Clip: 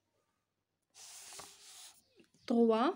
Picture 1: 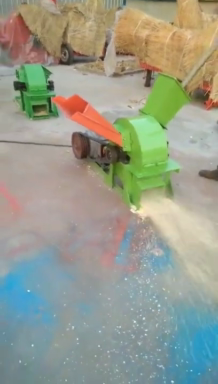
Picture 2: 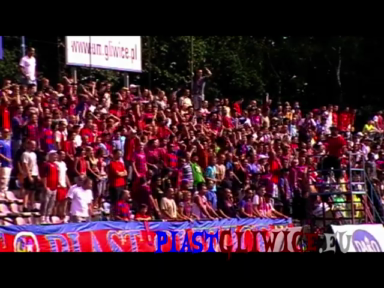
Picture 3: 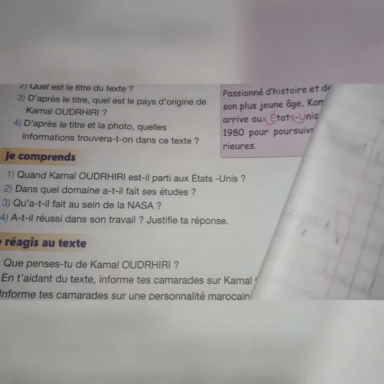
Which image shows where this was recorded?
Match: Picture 3